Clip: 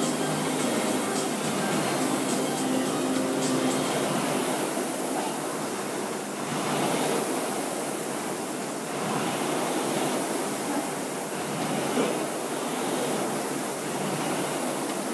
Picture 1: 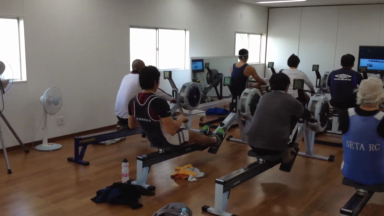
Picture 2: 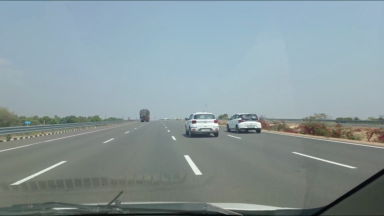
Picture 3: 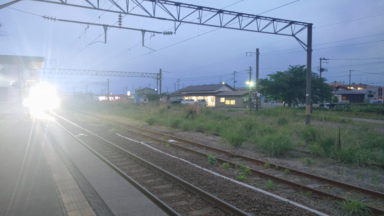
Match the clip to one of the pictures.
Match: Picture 1